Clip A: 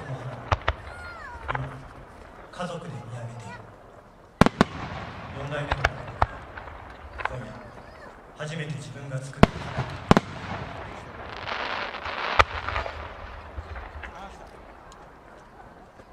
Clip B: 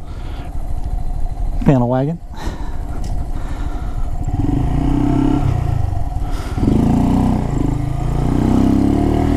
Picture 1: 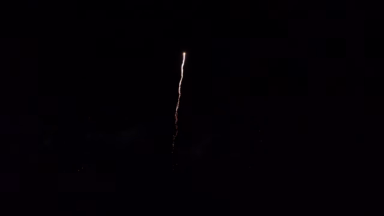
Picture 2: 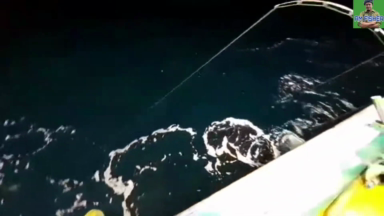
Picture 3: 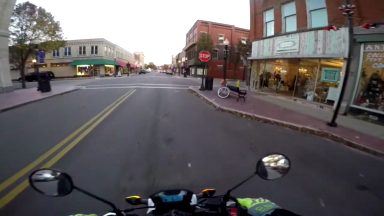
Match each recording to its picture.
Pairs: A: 1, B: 3